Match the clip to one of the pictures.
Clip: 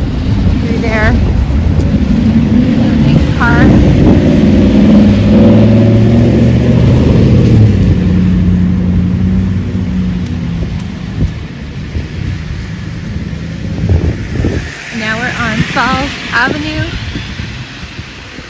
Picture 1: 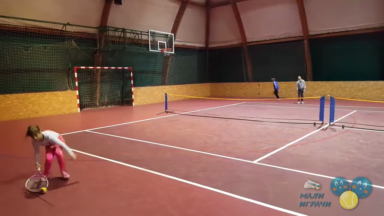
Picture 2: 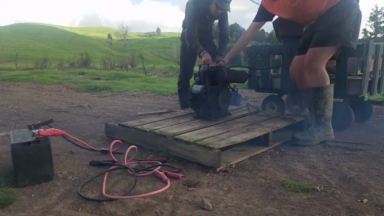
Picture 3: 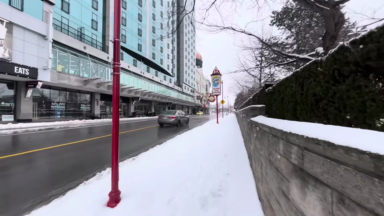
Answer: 3